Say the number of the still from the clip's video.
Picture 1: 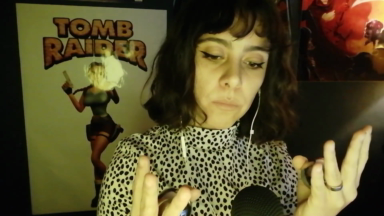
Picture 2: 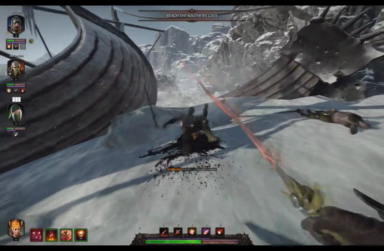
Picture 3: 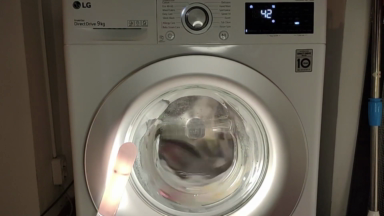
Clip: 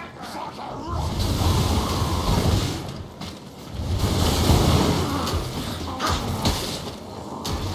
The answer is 2